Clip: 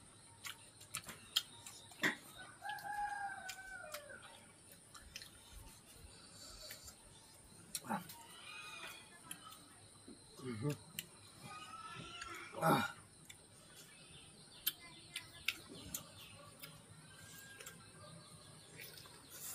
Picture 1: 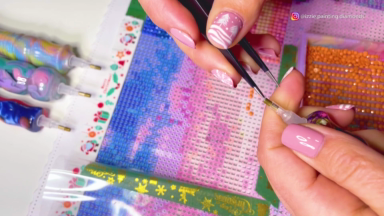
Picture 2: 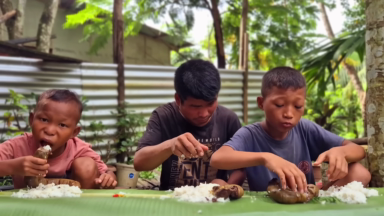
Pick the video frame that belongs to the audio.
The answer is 2